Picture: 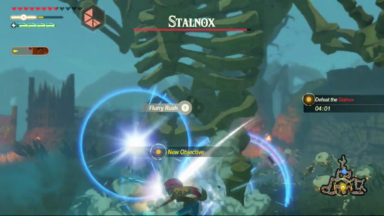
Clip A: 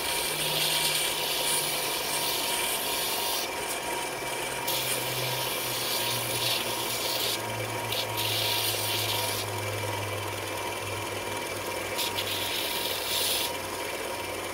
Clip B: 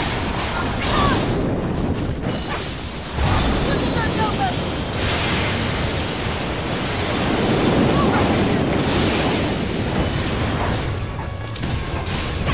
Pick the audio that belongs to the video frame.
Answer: B